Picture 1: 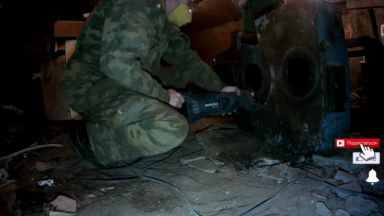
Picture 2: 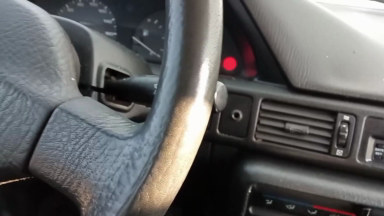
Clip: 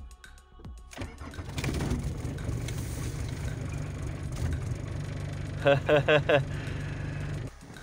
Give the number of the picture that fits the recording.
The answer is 2